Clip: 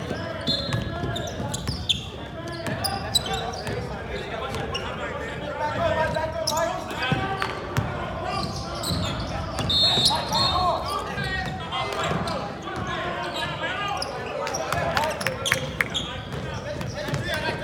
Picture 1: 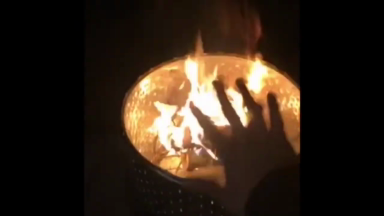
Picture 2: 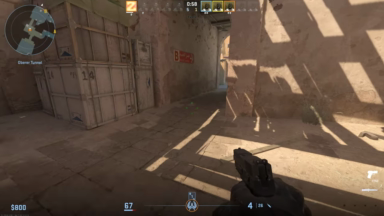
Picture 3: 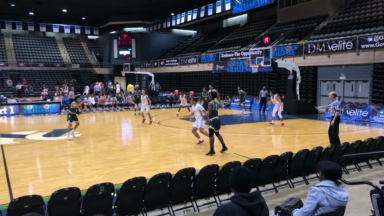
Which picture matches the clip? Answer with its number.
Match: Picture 3